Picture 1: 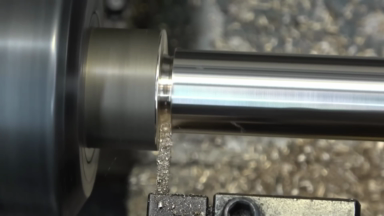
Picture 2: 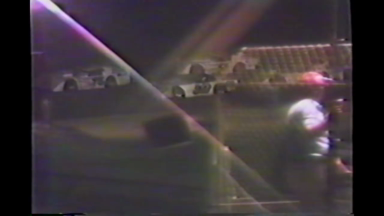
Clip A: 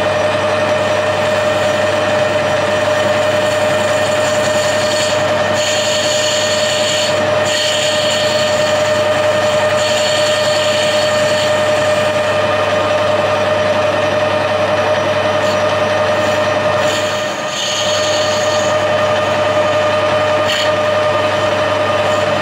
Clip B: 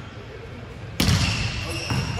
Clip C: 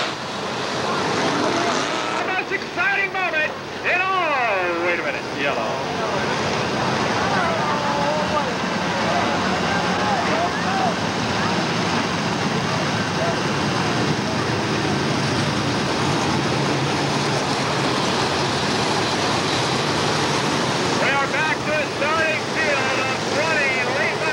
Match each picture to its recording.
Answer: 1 A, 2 C